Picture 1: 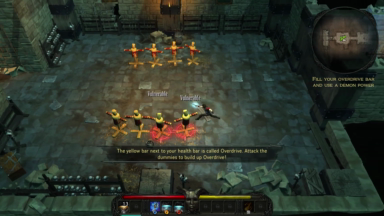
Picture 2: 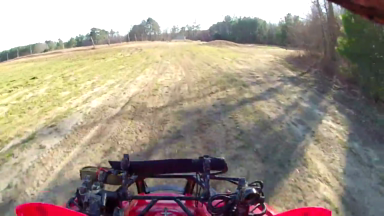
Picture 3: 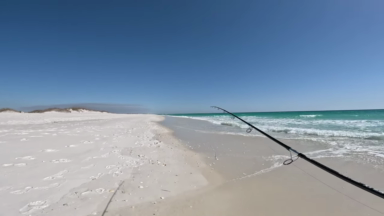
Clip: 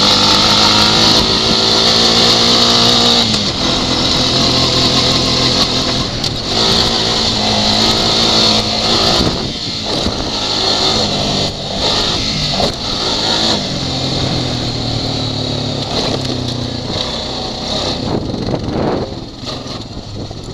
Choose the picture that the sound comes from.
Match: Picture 2